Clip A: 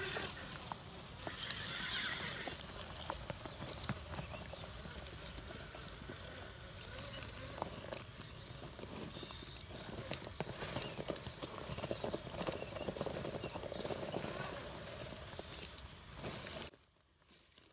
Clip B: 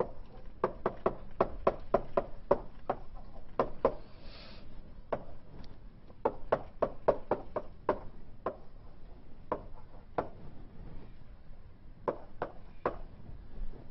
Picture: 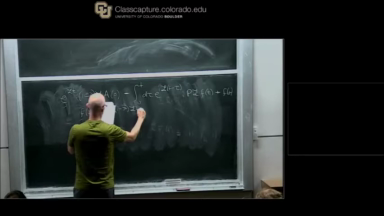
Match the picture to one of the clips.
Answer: B